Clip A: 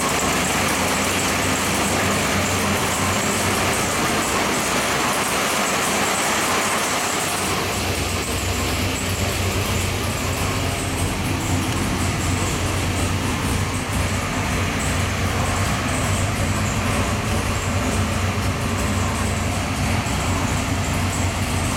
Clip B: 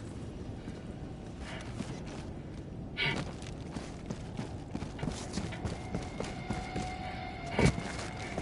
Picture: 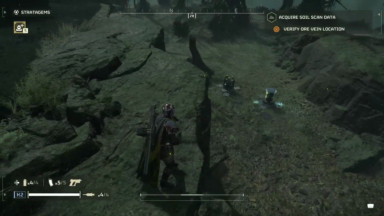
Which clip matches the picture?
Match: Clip B